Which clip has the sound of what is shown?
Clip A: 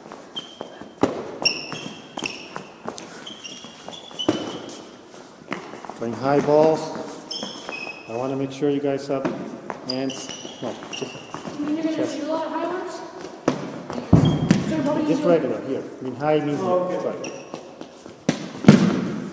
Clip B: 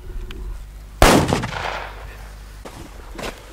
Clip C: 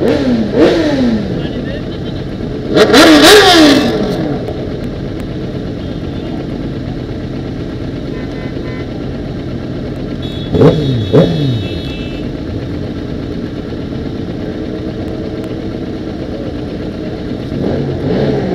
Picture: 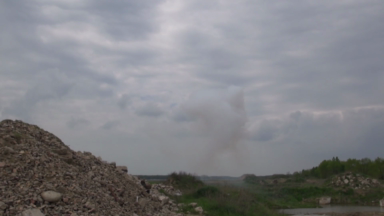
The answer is B